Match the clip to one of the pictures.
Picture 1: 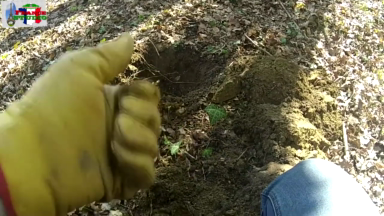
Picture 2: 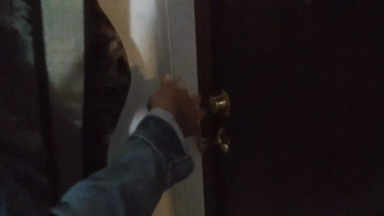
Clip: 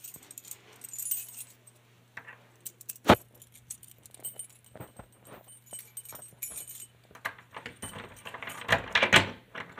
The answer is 2